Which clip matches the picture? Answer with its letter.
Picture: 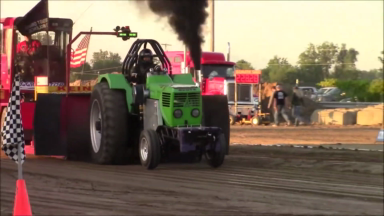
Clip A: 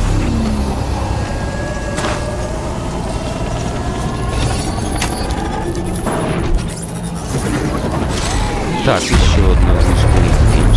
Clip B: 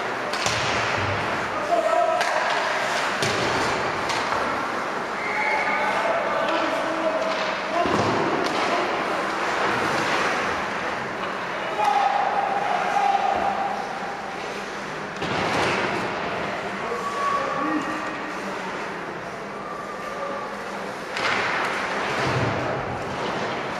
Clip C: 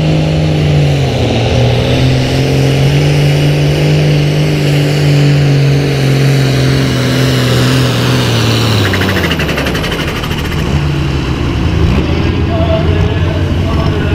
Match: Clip C